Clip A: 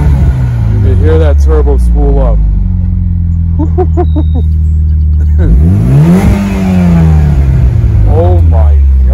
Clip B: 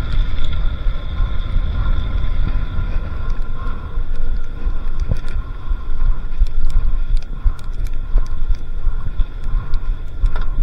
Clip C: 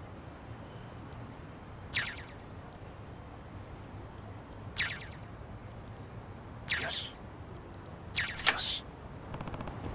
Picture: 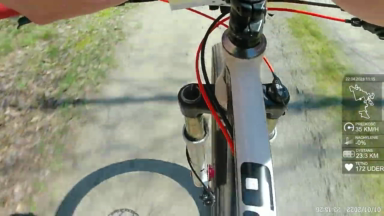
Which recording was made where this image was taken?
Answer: B